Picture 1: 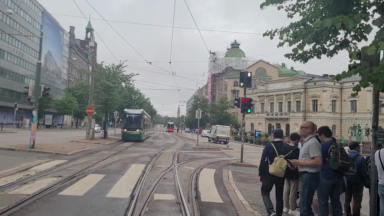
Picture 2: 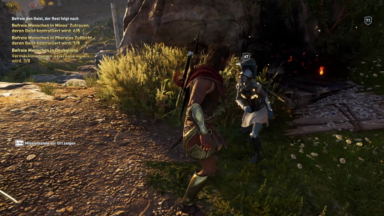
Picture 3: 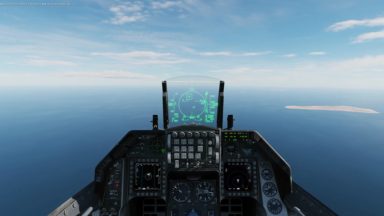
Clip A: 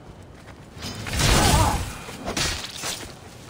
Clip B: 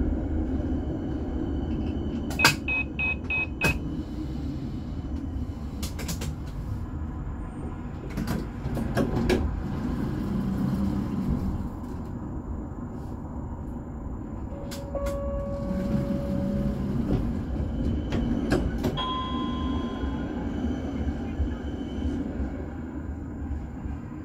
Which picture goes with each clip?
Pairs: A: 2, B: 1